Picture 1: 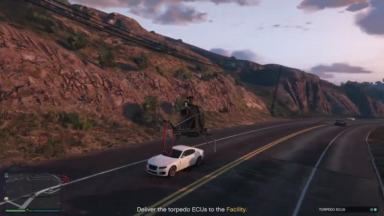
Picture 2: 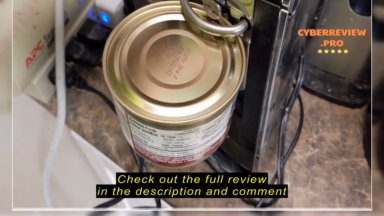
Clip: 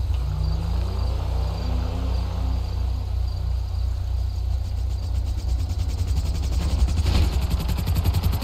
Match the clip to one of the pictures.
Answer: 1